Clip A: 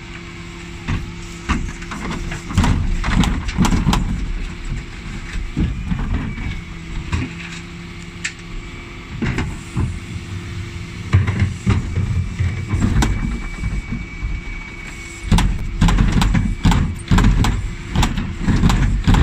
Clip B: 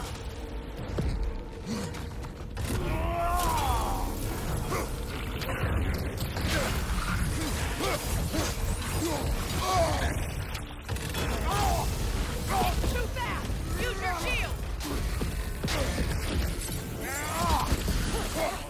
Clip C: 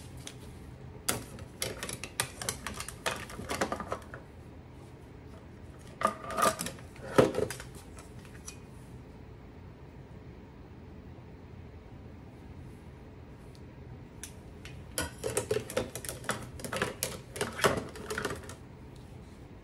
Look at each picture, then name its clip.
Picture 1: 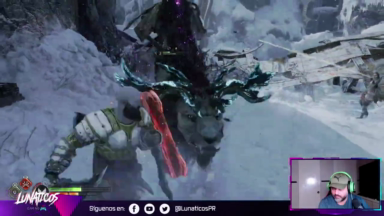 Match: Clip B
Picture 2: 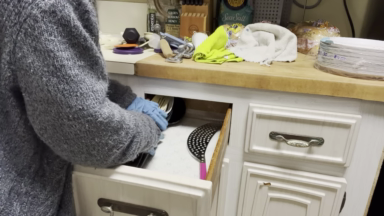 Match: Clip C